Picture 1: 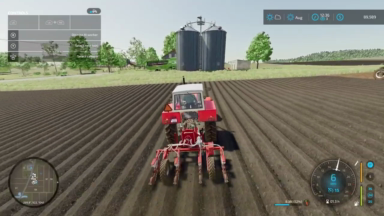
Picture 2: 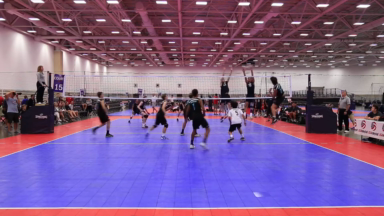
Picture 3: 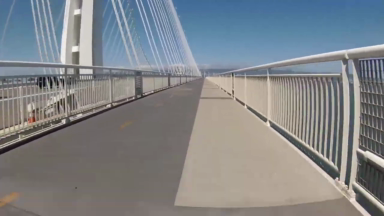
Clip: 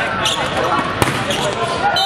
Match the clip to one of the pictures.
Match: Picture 2